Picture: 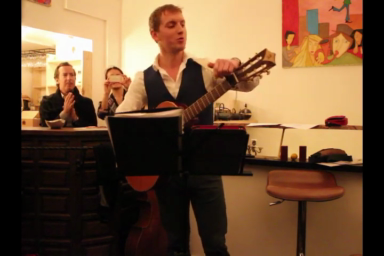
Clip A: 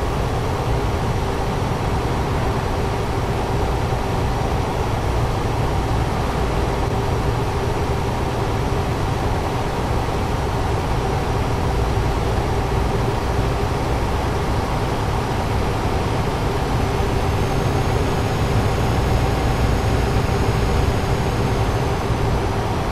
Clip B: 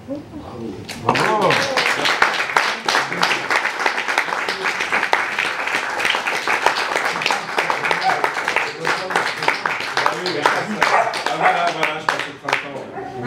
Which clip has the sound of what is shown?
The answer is B